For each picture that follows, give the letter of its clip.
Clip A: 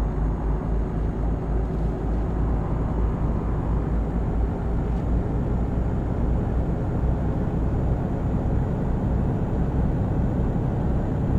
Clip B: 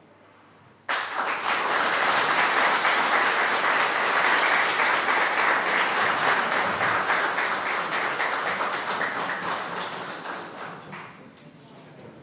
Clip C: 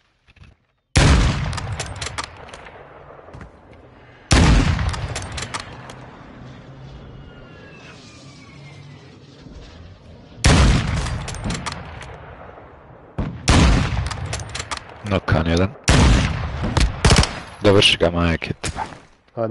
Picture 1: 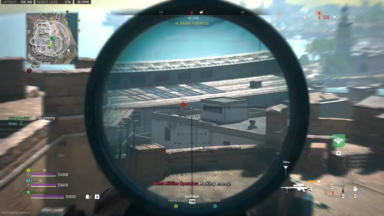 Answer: C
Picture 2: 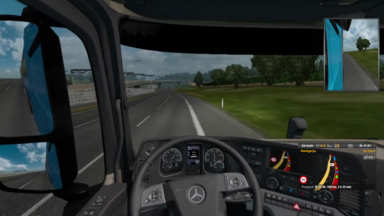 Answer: A